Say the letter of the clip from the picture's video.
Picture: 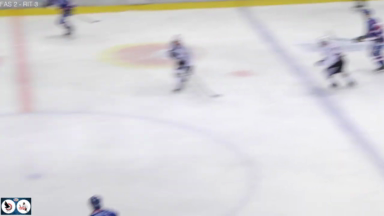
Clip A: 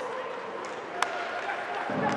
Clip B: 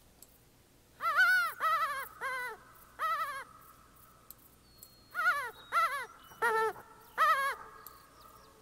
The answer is A